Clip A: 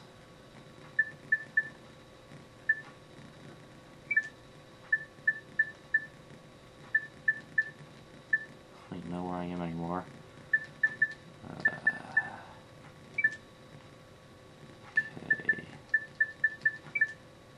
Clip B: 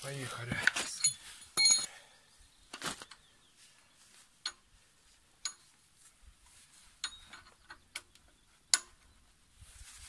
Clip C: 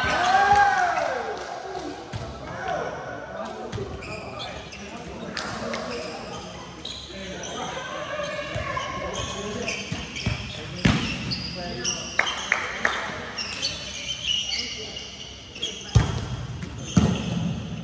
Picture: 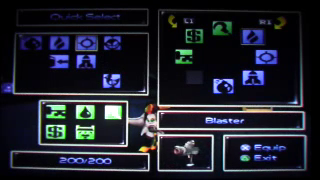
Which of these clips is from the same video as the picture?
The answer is A